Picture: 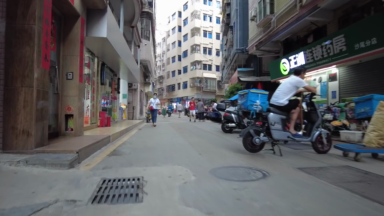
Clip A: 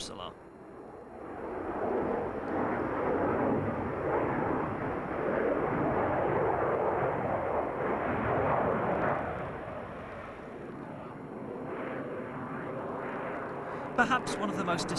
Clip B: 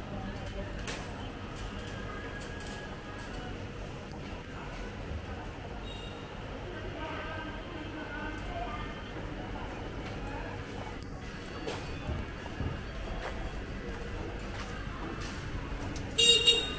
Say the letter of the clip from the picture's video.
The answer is B